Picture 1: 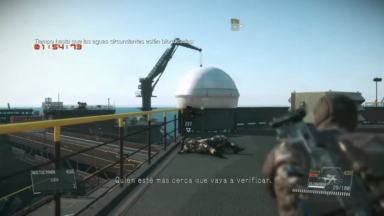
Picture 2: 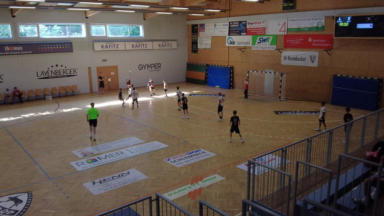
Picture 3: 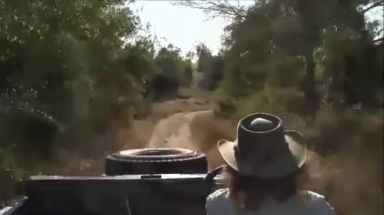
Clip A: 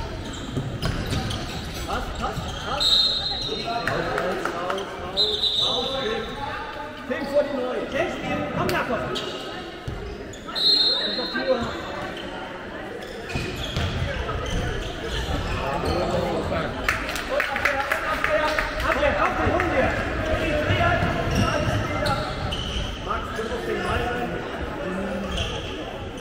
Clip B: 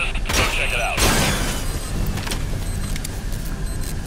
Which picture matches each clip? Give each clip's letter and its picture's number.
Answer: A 2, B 1